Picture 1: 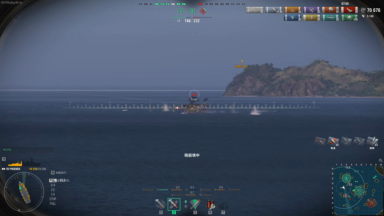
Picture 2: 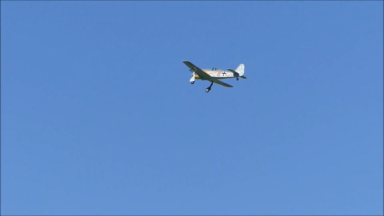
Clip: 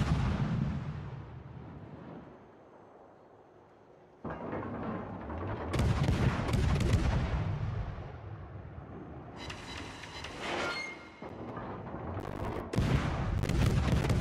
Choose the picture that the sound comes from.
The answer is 1